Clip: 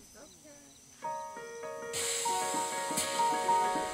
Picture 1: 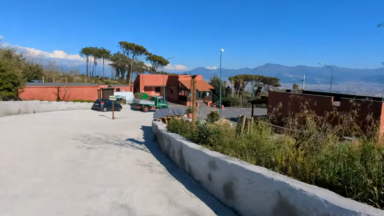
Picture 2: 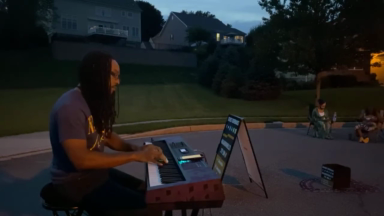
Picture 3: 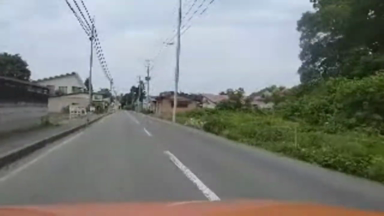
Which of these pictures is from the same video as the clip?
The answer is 2